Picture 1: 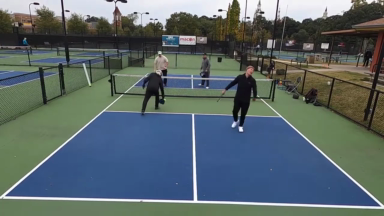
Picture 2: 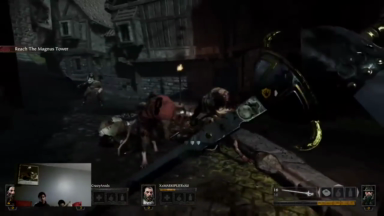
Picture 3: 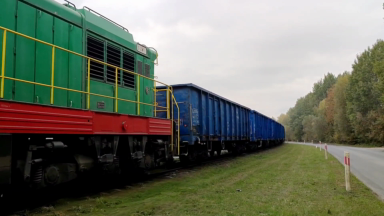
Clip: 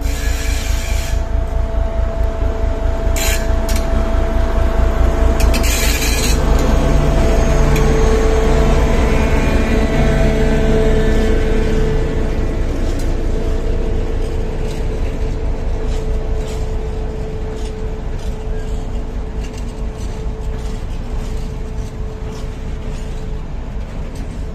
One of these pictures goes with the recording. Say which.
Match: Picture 3